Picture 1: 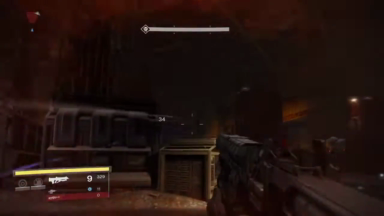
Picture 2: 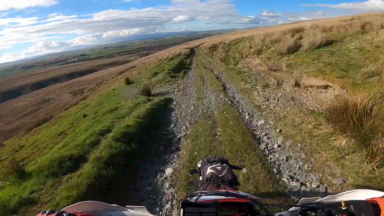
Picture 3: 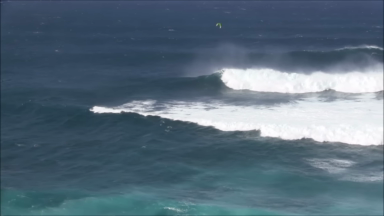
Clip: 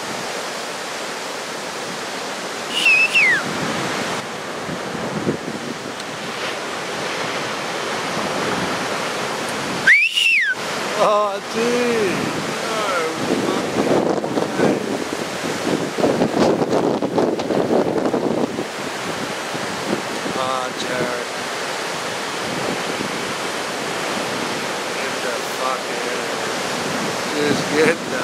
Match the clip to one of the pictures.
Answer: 3